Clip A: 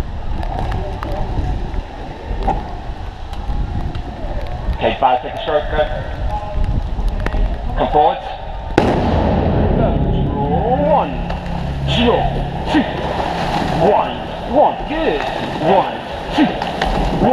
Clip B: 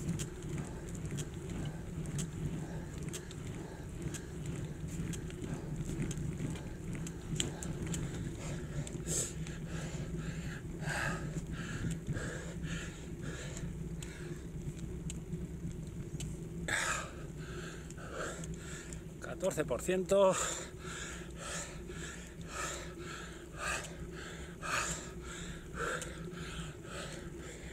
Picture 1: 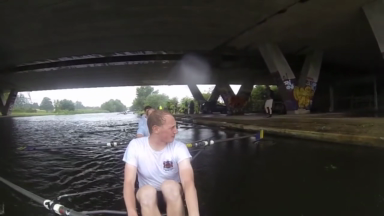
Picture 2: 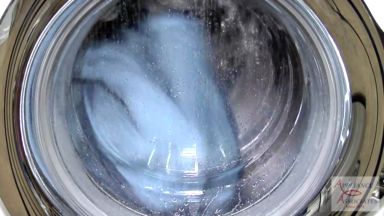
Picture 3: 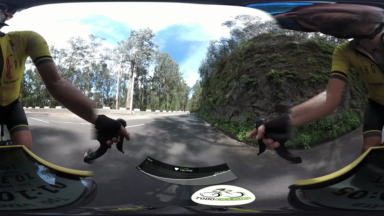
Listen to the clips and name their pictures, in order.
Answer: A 1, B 3